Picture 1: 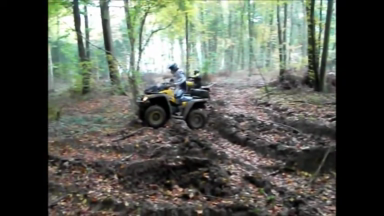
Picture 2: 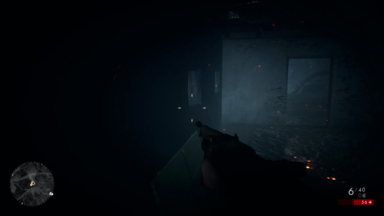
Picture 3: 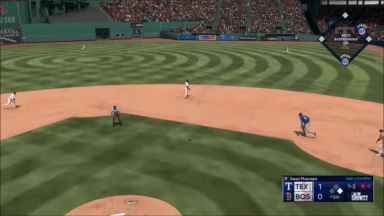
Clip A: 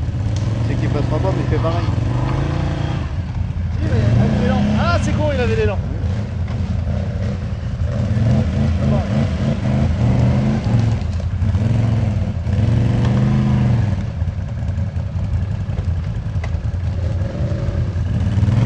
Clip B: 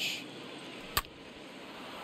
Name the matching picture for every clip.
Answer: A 1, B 3